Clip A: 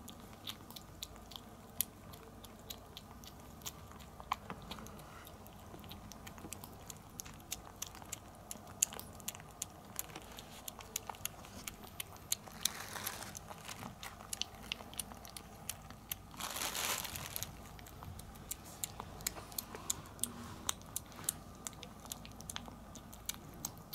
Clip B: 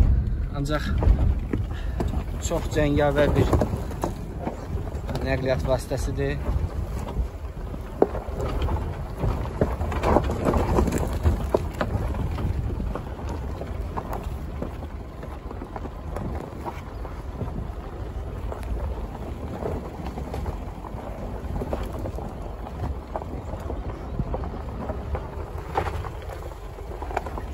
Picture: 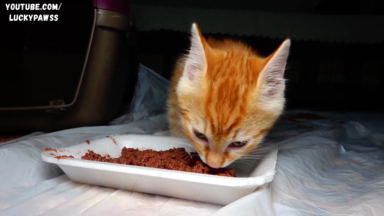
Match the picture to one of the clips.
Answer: A